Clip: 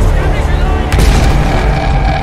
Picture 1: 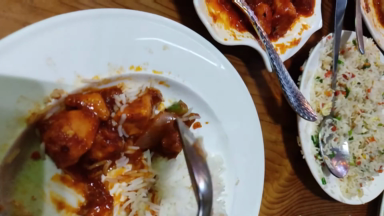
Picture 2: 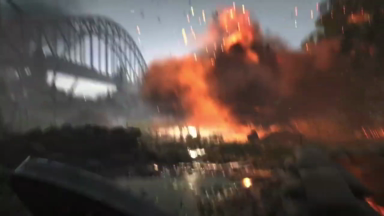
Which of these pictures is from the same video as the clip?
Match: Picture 2